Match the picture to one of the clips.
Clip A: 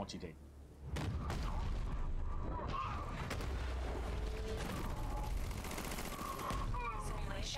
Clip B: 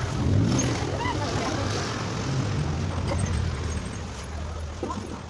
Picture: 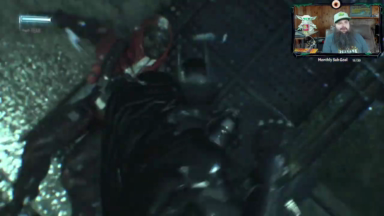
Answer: A